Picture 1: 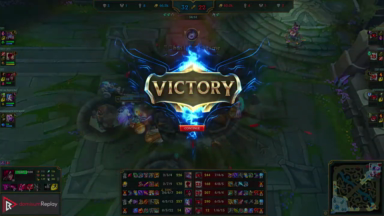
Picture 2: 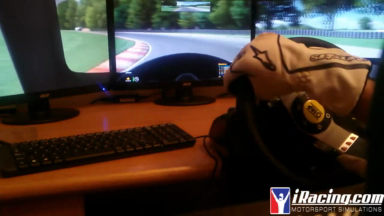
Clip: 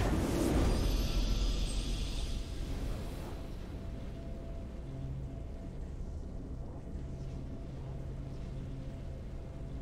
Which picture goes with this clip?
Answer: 1